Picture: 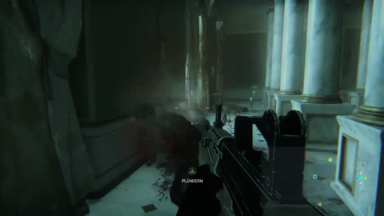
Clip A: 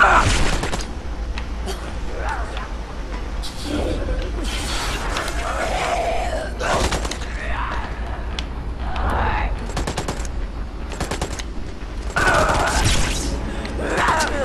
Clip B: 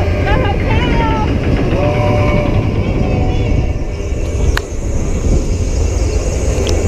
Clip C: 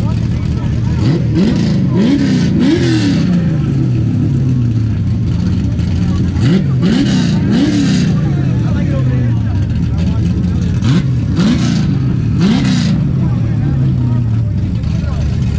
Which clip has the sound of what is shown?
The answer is A